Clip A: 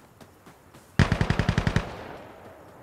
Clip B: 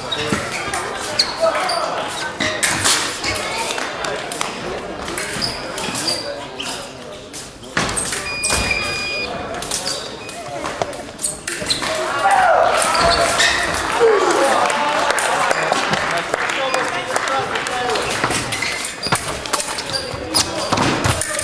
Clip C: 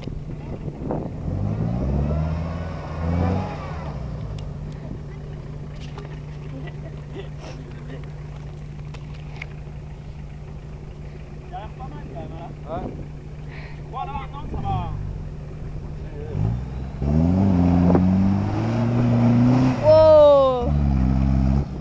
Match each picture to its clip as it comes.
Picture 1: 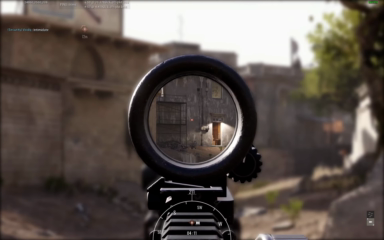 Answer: A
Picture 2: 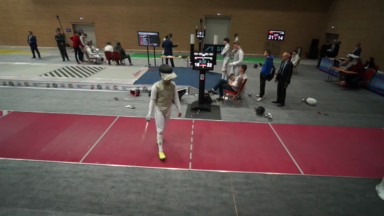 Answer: B